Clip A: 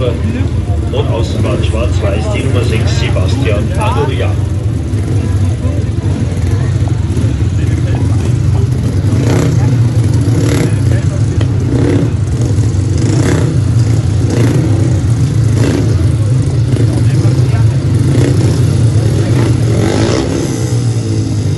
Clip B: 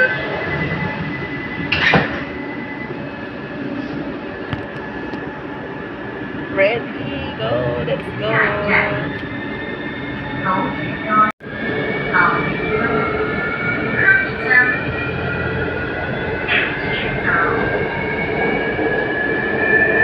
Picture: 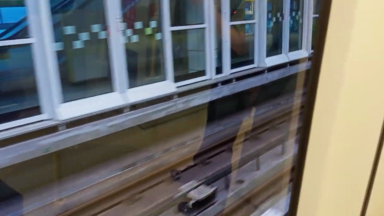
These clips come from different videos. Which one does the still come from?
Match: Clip B